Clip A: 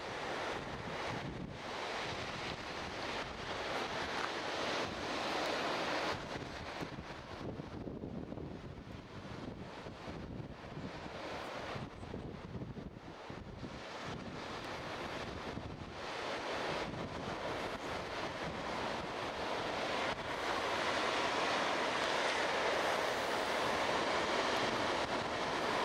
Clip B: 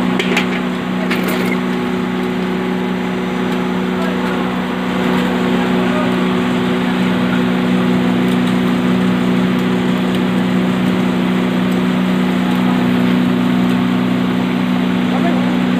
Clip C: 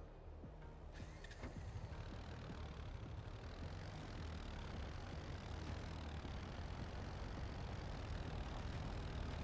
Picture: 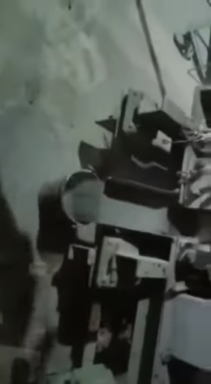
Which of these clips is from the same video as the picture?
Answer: B